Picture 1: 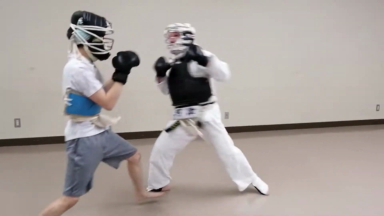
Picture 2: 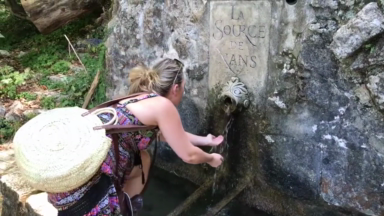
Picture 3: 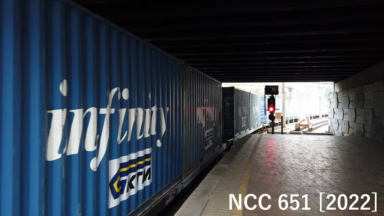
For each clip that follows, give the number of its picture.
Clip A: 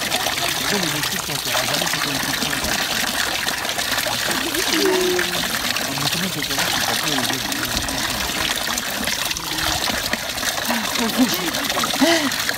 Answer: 2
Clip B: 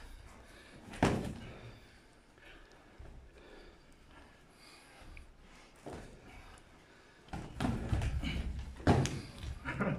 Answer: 1